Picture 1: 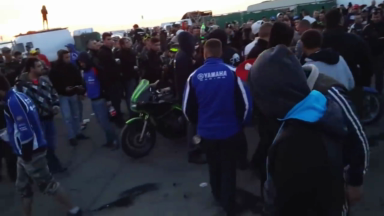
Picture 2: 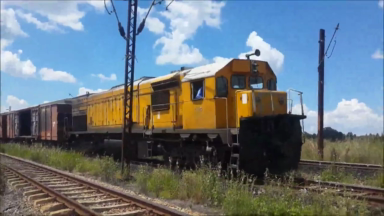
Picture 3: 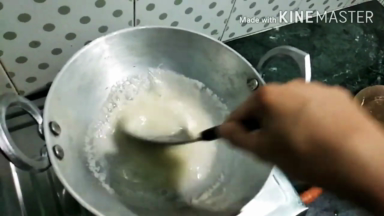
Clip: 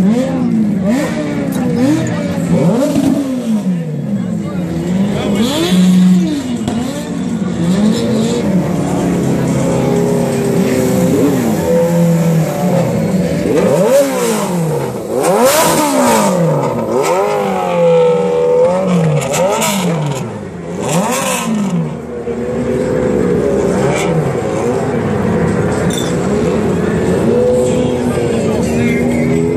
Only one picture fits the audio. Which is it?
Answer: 1